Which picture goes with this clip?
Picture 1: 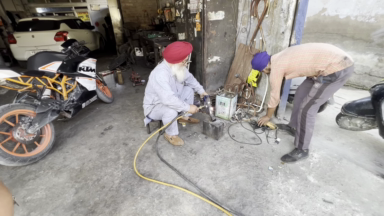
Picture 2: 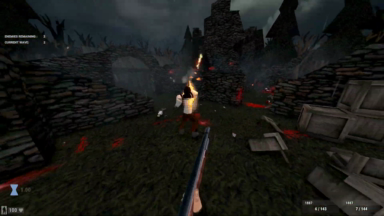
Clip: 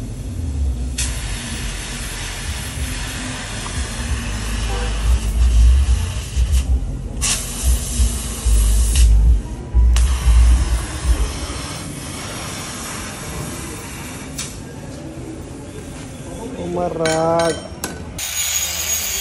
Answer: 1